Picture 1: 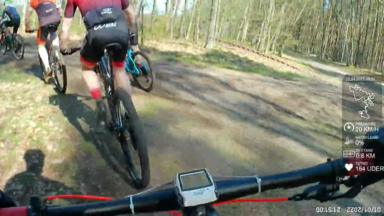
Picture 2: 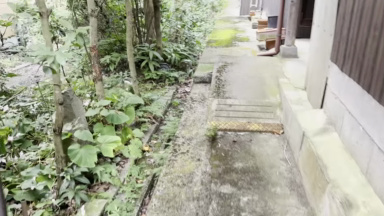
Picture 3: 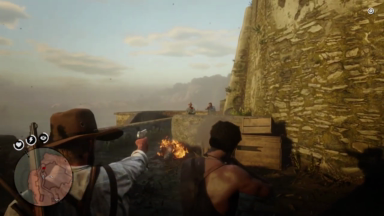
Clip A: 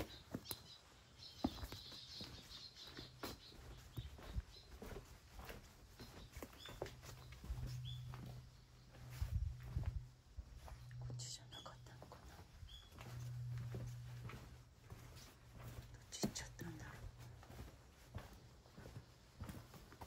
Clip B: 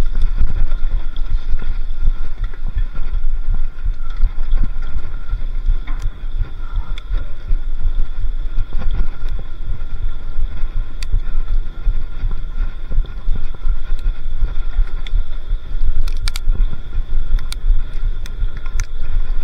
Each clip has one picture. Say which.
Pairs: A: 2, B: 1